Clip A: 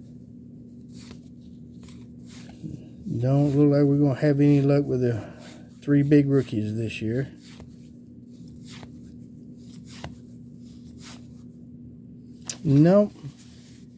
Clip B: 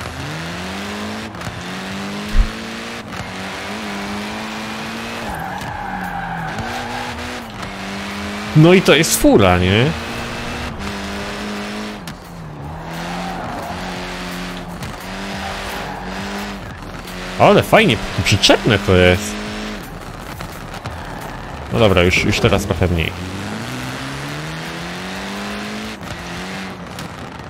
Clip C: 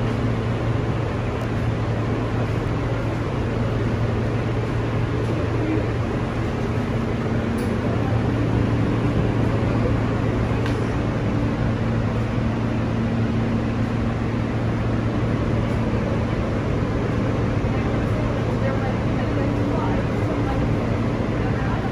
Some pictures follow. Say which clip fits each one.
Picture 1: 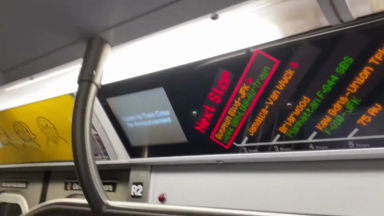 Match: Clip C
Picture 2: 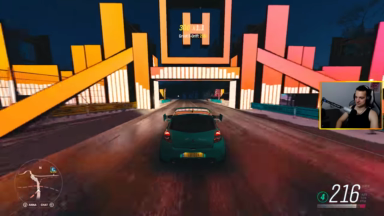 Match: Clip B